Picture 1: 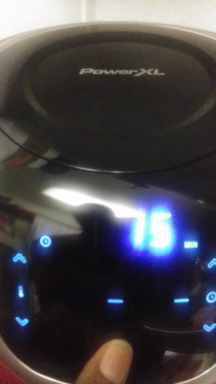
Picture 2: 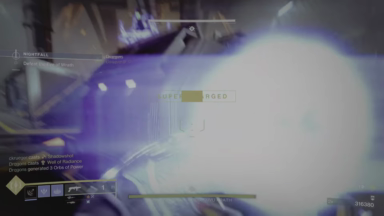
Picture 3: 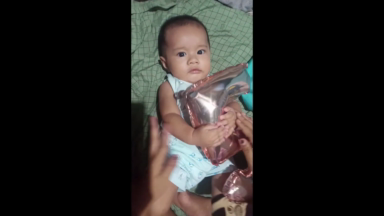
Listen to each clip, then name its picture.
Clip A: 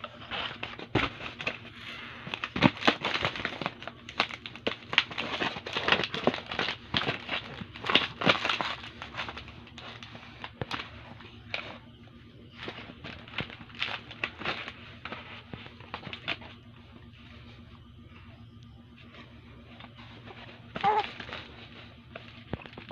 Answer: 3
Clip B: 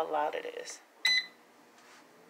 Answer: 1